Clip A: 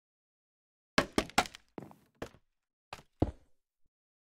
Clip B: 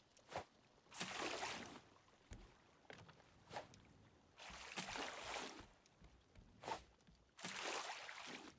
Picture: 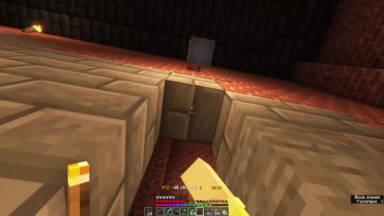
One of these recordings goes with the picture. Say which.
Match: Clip A